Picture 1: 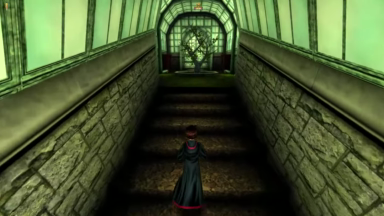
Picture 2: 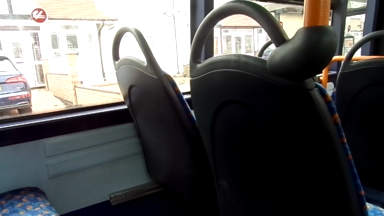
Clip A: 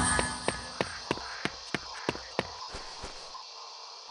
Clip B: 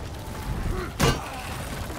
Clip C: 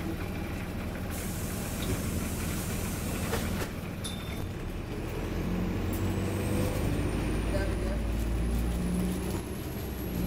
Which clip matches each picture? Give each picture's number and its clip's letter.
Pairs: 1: A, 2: C